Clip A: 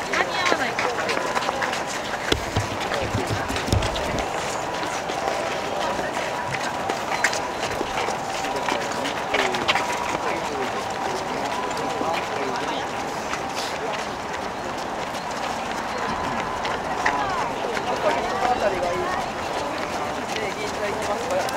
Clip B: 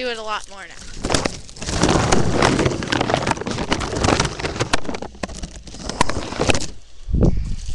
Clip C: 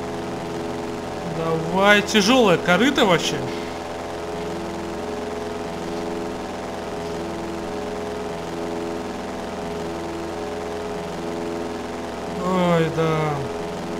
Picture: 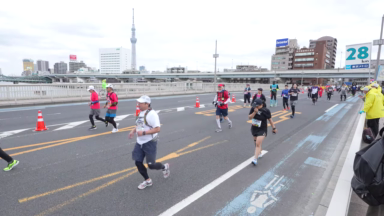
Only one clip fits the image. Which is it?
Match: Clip A